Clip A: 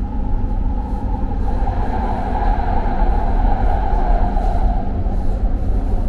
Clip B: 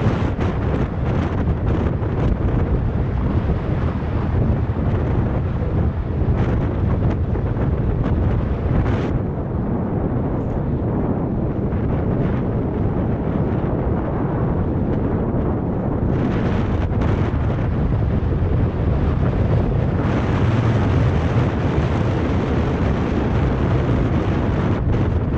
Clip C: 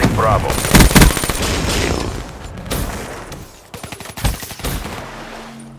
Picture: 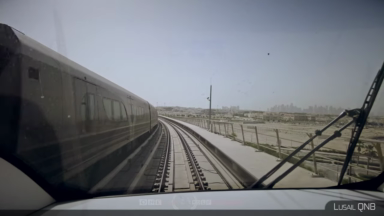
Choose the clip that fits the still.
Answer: A